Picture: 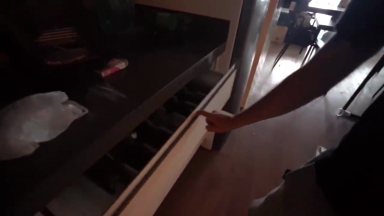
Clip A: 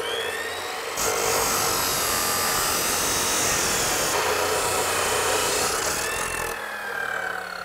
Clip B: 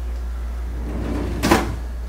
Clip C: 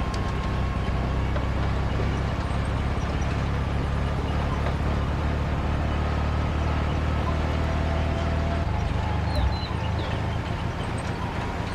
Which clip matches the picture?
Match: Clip B